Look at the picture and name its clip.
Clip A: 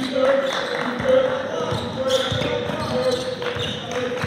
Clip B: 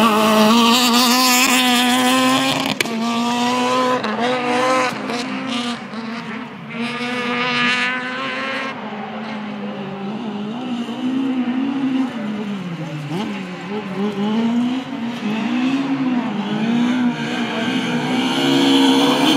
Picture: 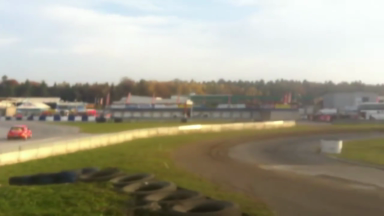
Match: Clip B